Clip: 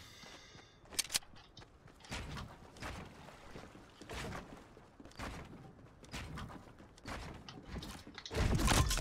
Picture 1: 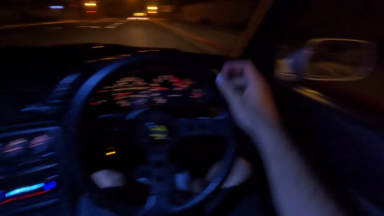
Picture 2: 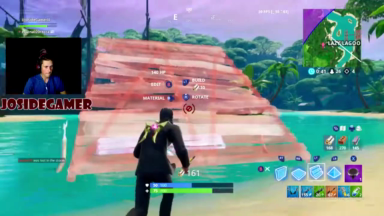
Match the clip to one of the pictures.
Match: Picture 2